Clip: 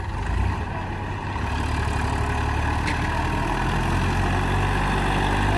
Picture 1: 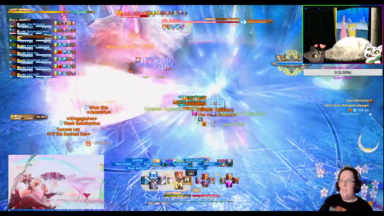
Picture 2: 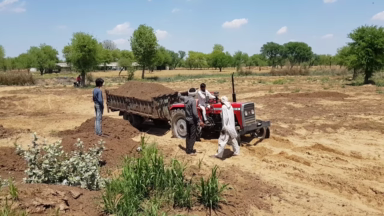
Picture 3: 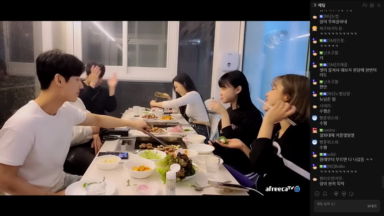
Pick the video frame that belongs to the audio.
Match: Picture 2